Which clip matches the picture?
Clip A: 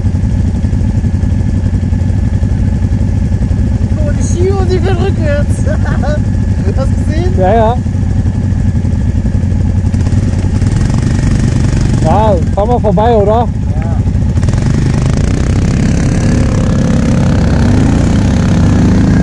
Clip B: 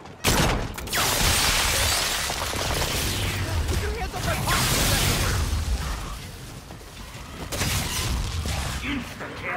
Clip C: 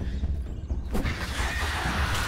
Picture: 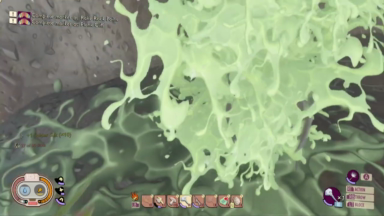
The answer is C